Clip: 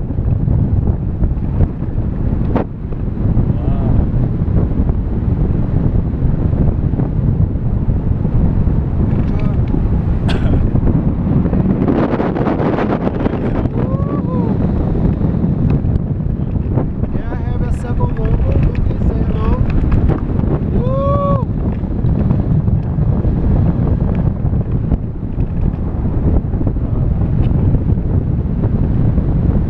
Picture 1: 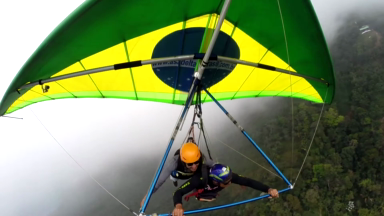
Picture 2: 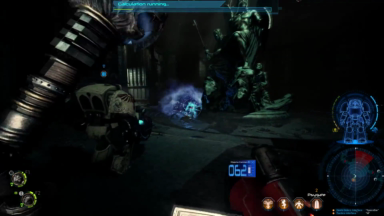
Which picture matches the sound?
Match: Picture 1